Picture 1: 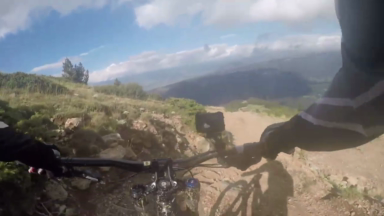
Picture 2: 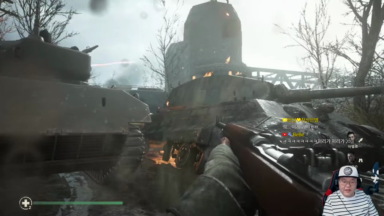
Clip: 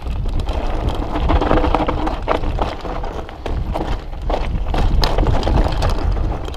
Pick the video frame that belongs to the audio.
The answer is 1